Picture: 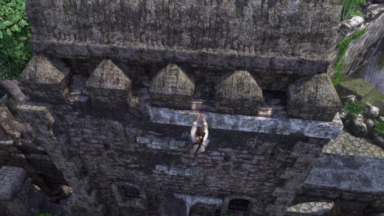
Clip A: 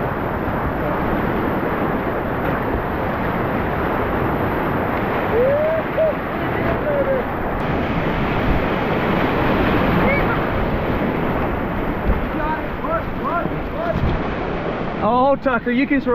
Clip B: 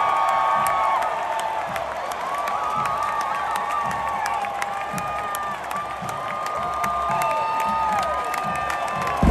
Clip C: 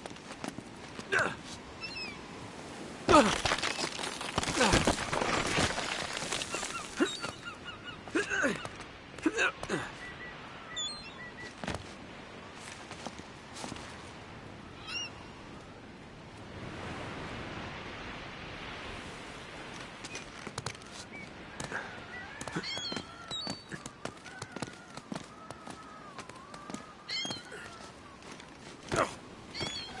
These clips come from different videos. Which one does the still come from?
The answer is C